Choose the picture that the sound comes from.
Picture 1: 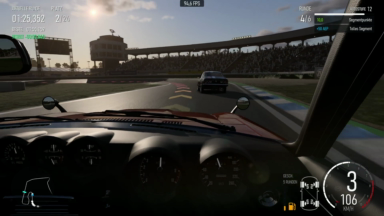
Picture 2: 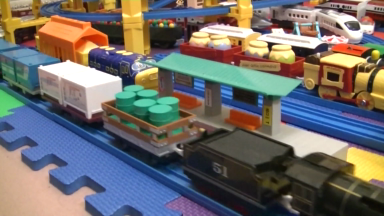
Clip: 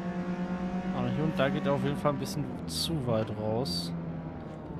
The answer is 1